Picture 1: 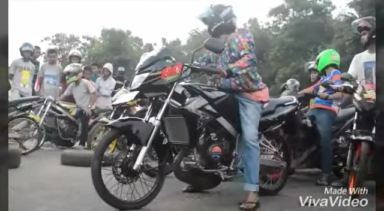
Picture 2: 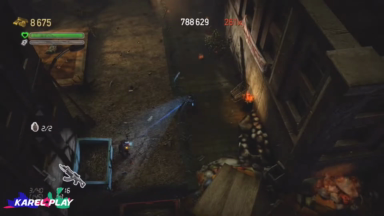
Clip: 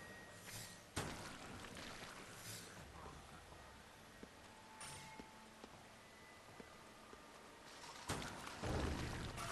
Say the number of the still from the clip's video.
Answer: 2